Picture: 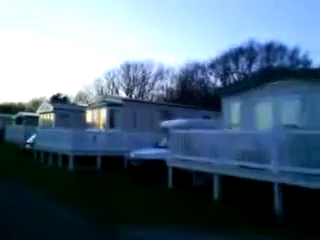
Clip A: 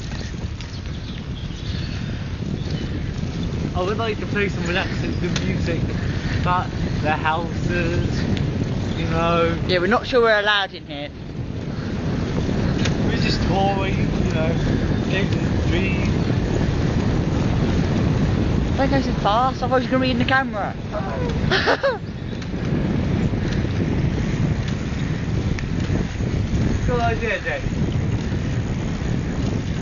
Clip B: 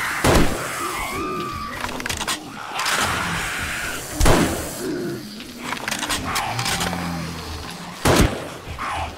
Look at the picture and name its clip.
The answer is A